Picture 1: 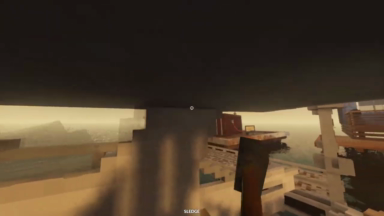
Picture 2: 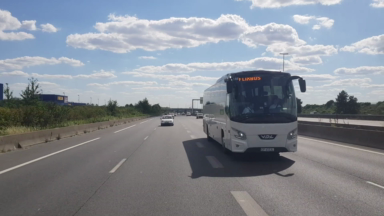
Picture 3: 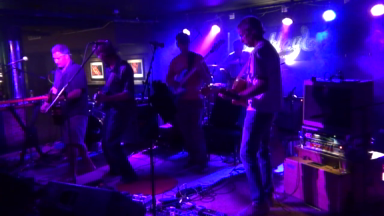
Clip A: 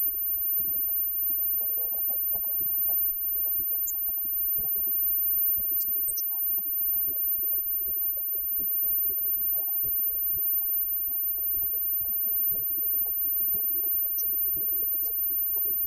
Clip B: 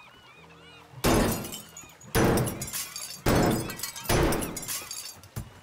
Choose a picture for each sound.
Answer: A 3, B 1